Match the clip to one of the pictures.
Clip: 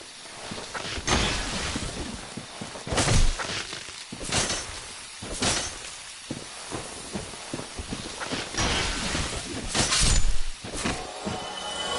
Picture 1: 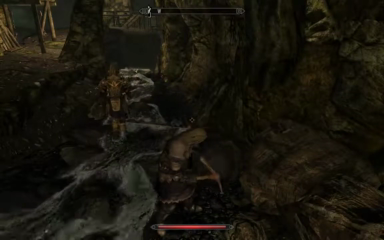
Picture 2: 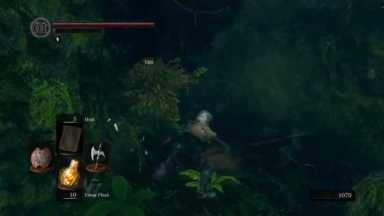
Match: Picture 2